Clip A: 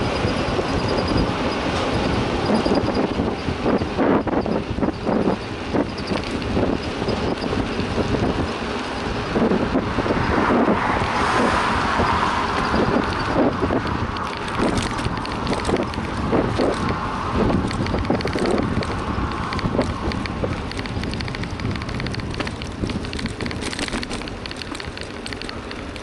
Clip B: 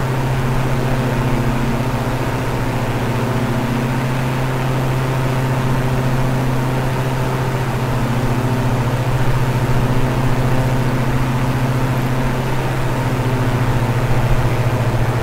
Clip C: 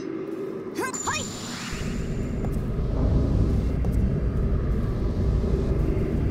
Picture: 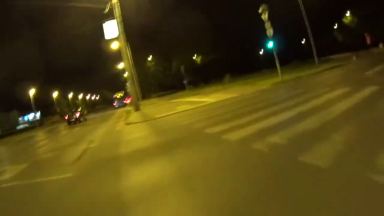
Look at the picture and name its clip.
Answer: A